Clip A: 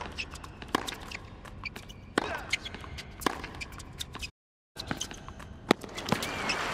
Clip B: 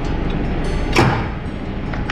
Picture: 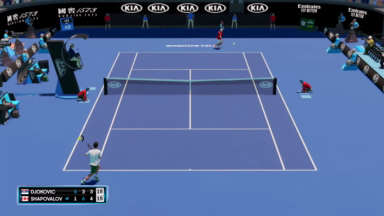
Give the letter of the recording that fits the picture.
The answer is A